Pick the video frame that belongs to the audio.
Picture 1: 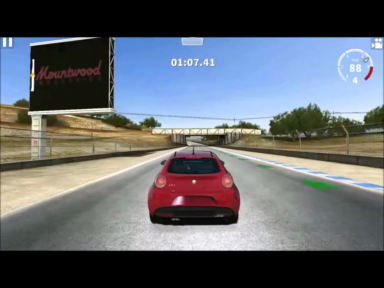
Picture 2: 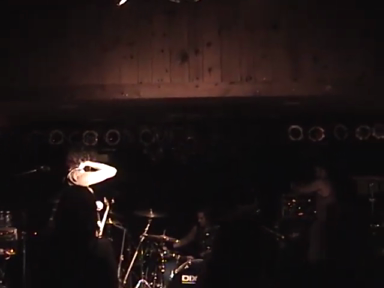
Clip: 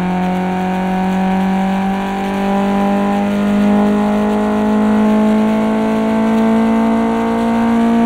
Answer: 1